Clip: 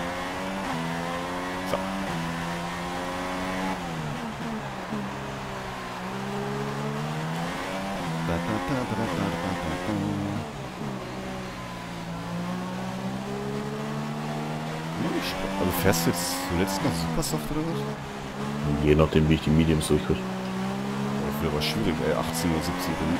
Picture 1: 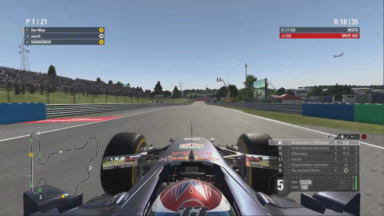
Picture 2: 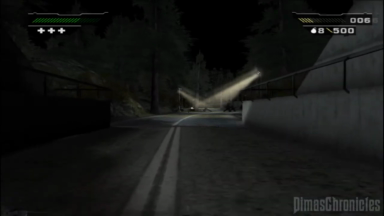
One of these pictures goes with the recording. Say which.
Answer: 1